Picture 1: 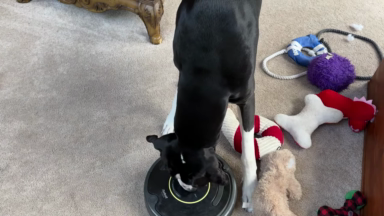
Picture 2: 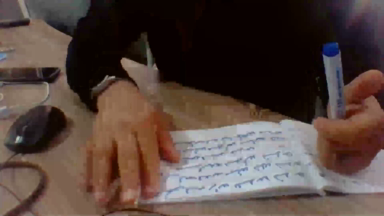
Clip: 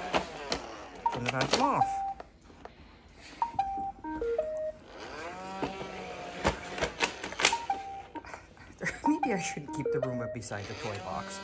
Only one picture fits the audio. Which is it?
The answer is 1